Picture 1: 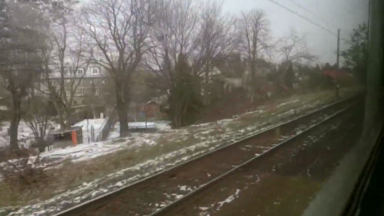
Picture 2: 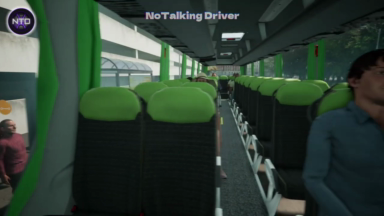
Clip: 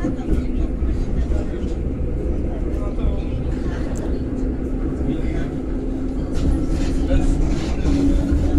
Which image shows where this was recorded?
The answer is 1